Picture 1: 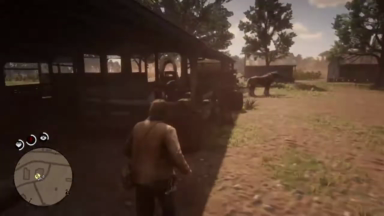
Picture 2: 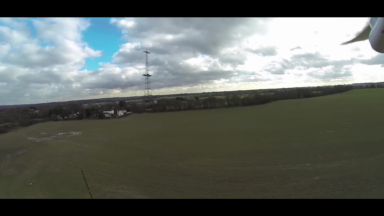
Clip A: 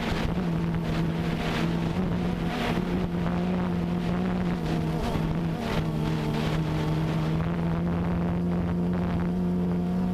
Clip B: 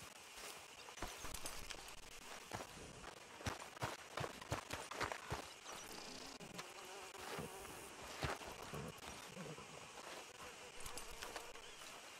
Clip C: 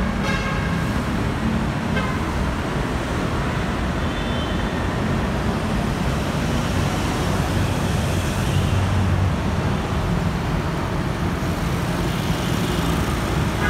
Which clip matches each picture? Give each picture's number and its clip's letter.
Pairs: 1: B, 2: A